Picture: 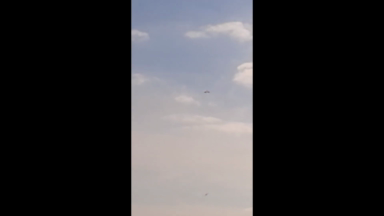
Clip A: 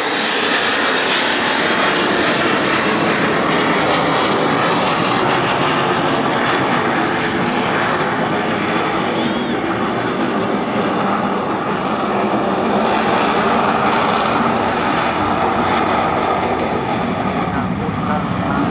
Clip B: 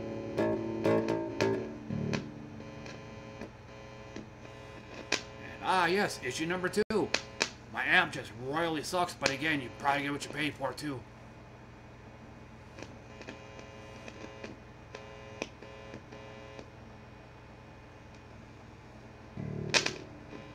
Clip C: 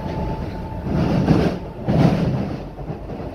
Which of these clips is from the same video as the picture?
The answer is A